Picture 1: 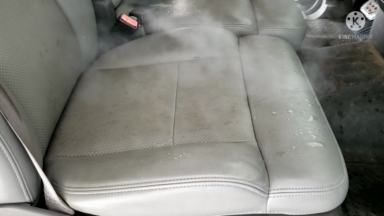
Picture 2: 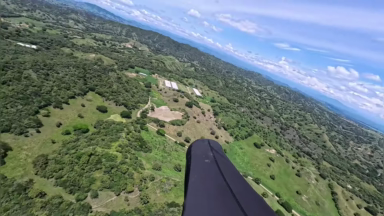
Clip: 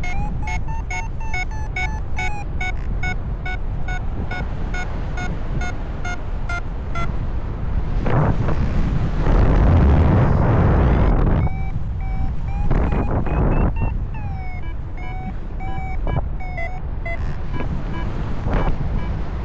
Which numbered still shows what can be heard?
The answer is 2